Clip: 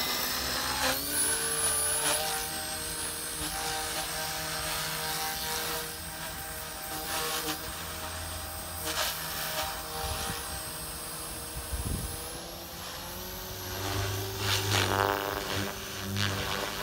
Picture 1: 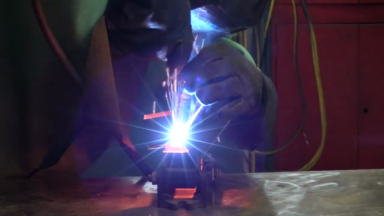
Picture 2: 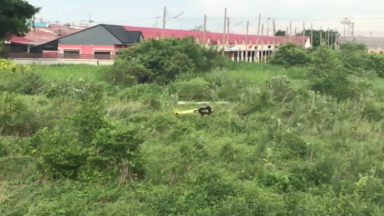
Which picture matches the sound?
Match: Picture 2